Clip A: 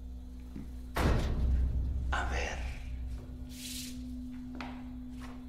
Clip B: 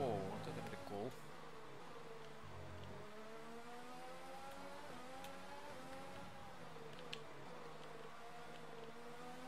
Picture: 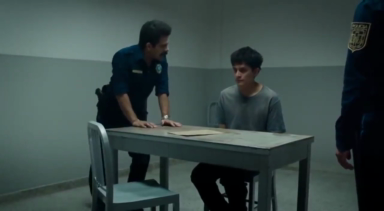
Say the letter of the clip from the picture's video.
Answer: A